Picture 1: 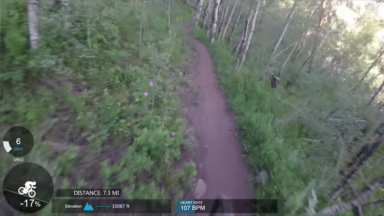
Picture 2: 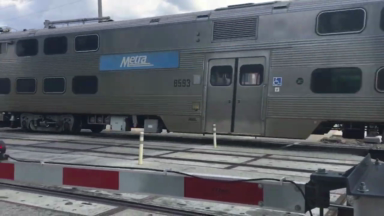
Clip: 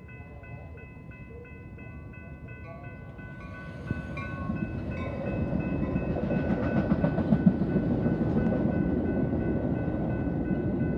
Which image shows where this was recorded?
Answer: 2